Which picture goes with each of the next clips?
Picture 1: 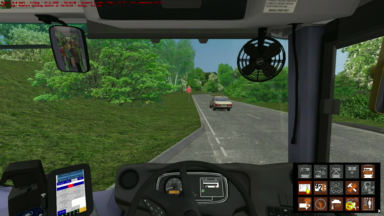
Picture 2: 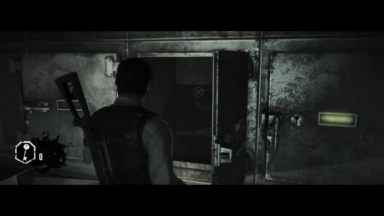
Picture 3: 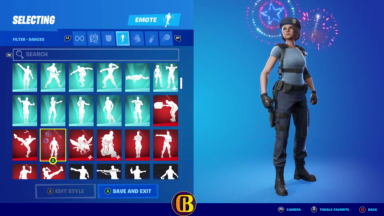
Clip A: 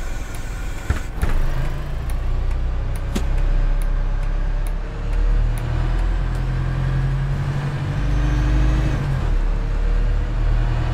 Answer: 1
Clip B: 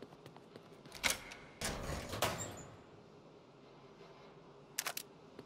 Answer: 2